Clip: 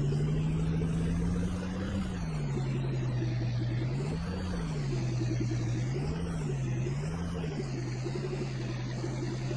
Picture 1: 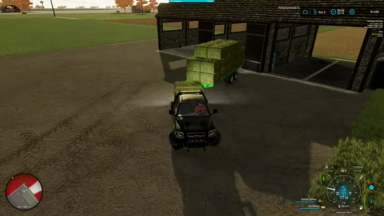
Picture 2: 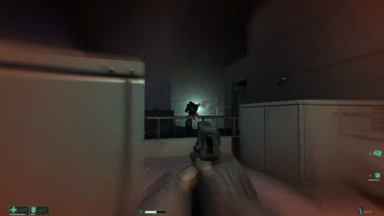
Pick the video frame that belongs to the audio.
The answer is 1